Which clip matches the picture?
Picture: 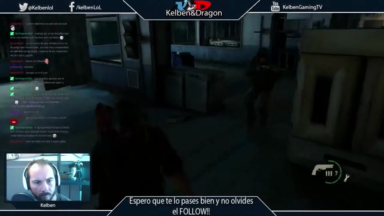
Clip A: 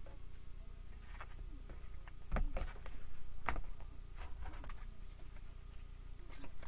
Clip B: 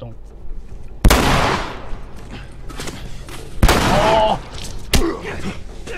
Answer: B